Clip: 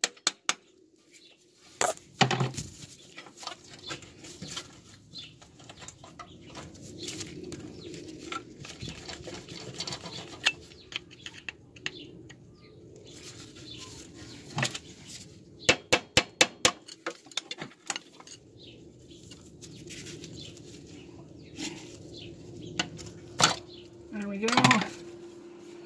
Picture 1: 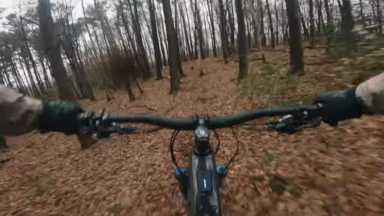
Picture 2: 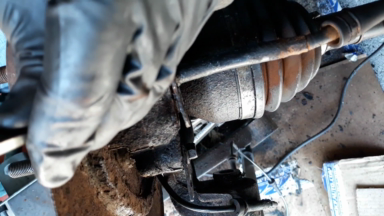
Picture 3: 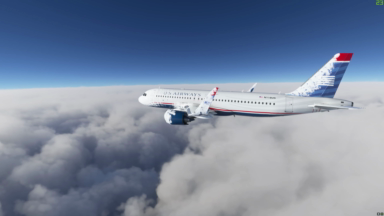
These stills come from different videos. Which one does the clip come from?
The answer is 2